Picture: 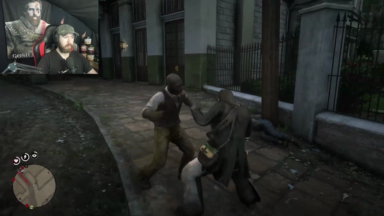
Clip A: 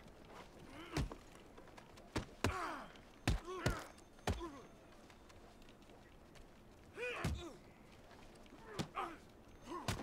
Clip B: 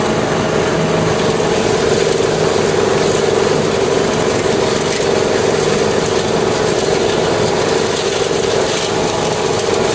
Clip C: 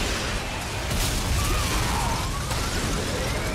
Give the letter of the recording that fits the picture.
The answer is A